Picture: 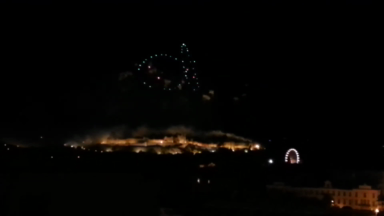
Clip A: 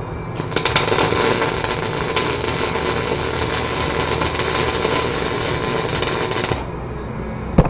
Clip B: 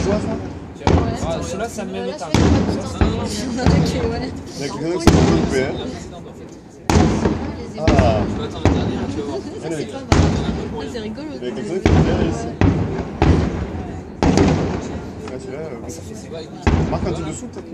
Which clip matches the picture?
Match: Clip B